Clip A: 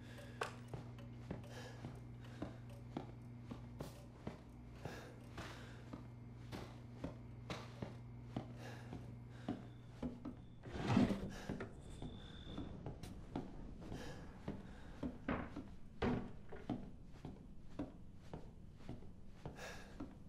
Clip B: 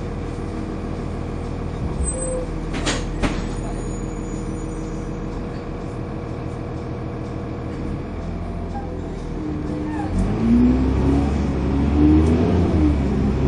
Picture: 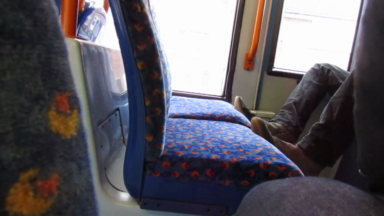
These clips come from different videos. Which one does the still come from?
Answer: B